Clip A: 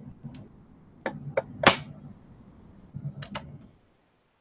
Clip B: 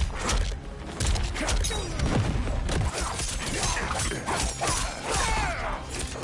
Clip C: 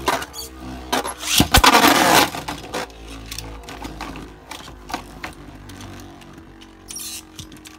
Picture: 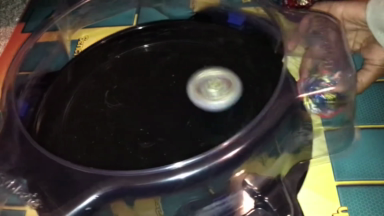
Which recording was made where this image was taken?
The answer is C